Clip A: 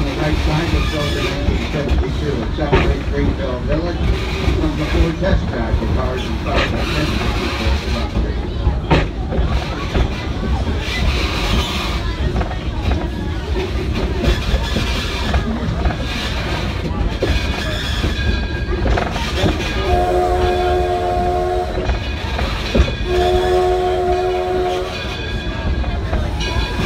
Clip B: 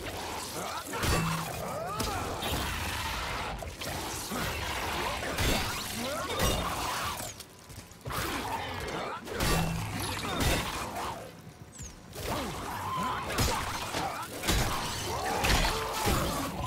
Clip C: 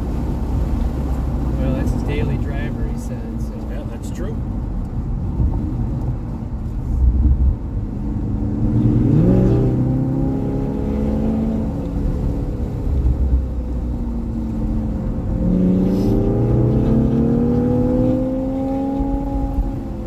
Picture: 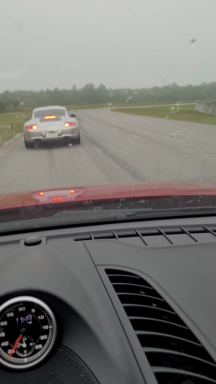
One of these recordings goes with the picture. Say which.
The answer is C